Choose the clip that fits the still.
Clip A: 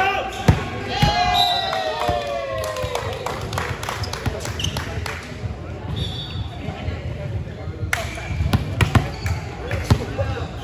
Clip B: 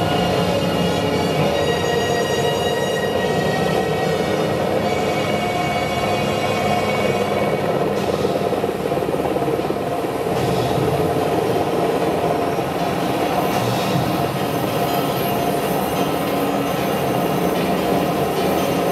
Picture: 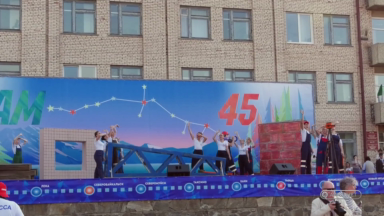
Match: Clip B